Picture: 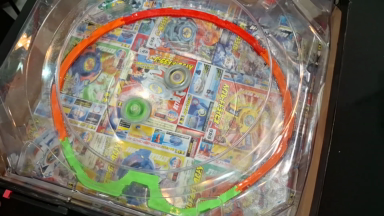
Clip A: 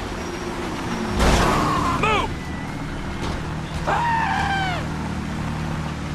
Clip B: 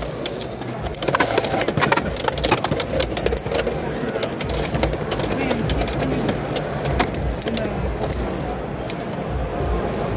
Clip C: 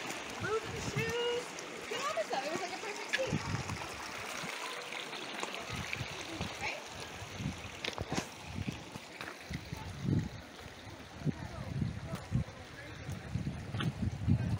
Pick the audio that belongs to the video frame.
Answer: B